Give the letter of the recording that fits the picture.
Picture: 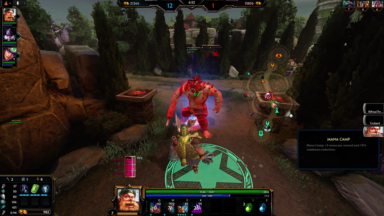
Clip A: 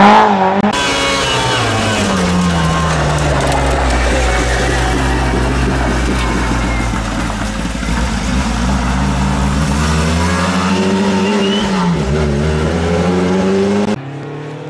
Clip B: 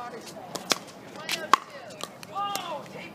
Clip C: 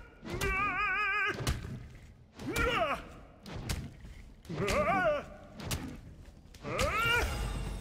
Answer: C